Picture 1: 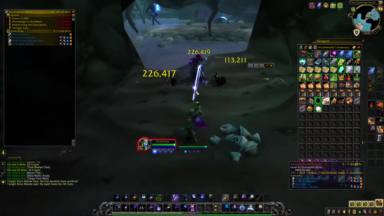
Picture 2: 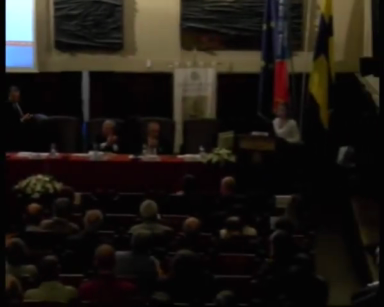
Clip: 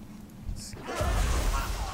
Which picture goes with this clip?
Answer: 1